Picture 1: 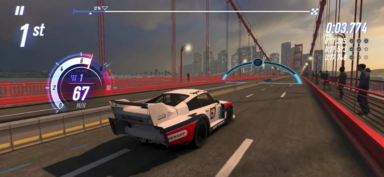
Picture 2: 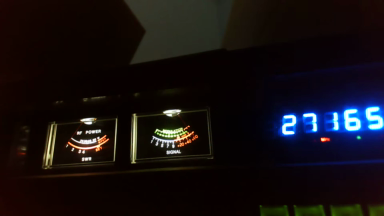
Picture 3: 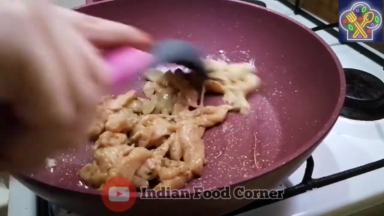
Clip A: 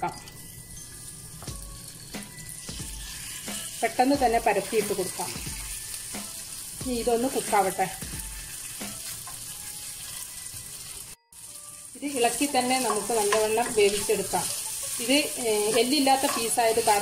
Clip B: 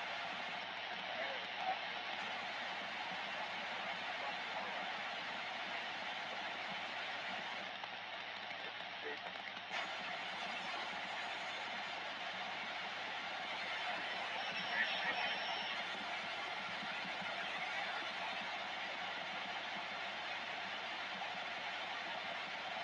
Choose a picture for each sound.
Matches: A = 3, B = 2